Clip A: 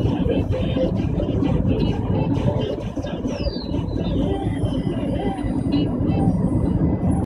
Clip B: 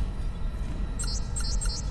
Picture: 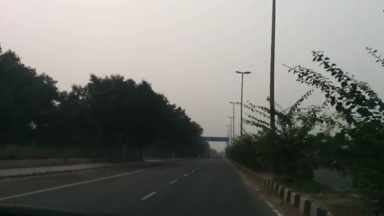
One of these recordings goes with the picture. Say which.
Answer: A